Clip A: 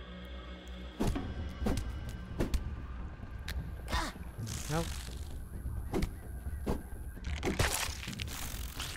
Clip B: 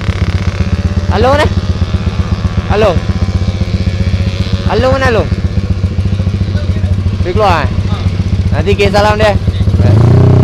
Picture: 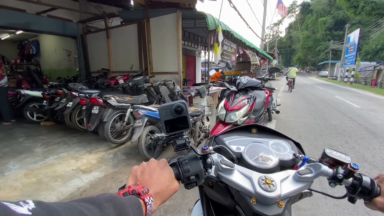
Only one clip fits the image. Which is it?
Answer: B